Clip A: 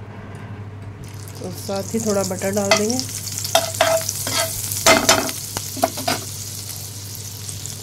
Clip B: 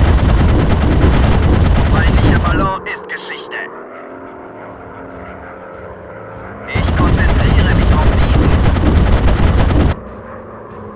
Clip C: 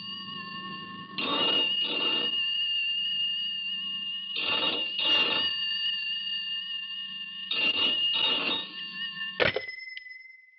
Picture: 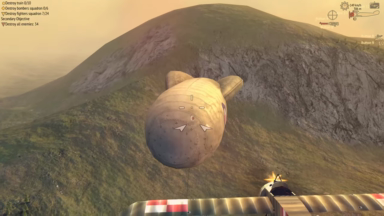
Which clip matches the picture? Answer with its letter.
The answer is B